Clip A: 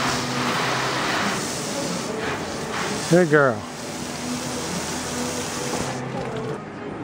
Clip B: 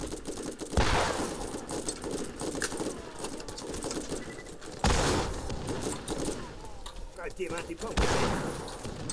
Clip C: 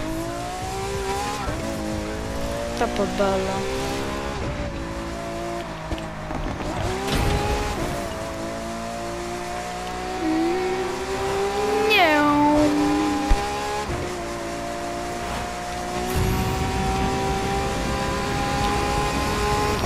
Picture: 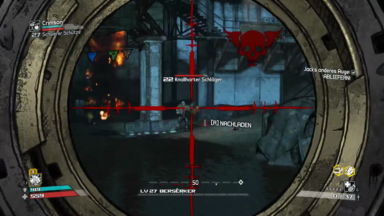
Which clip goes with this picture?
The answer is B